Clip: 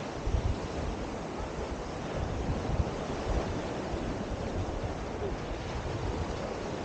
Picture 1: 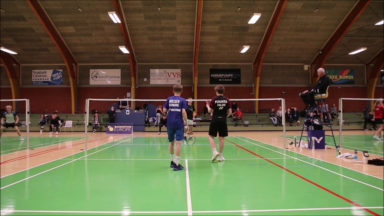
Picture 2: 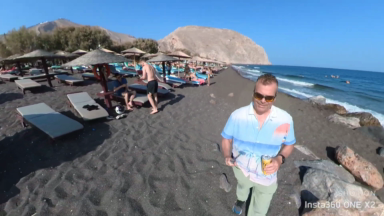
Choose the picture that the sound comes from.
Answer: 2